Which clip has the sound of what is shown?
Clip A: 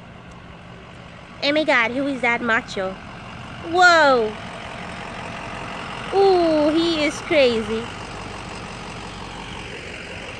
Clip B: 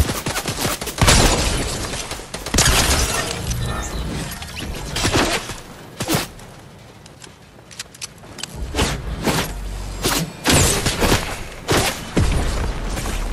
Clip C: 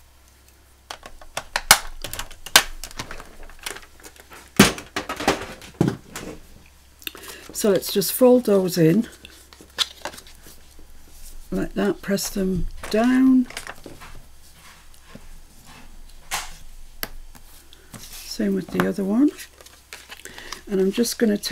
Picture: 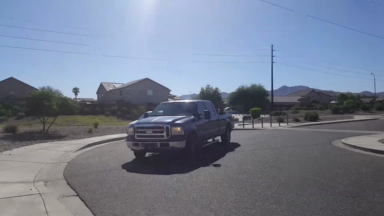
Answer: A